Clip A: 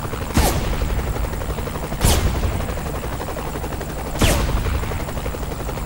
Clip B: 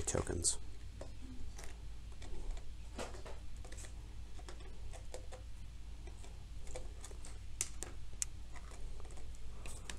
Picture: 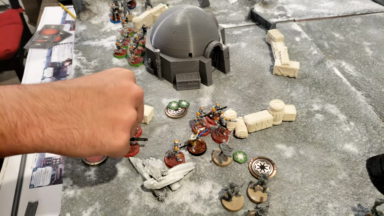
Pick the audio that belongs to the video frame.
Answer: B